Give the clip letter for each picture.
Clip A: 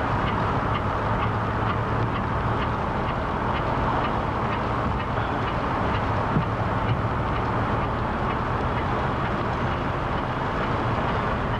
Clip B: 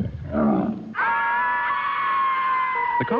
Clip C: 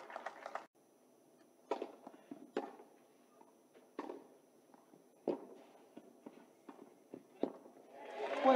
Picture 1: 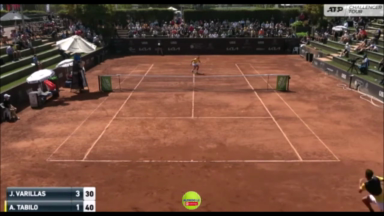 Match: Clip C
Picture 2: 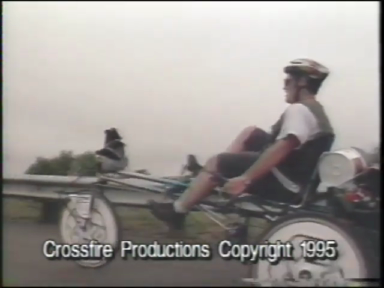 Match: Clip A